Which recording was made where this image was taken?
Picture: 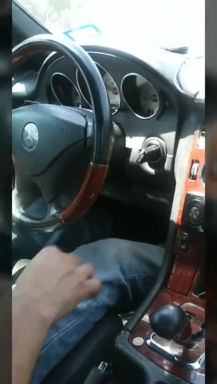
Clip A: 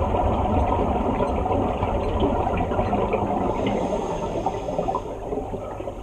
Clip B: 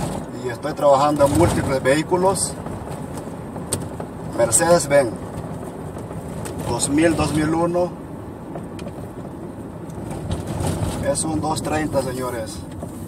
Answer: B